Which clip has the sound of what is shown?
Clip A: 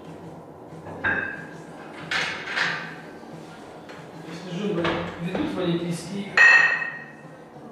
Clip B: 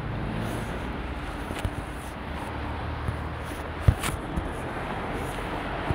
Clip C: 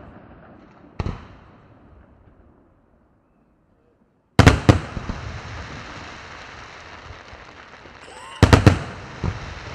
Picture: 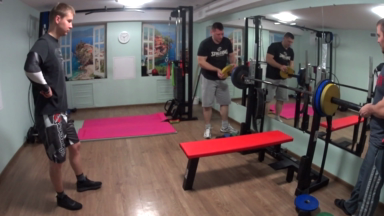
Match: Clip A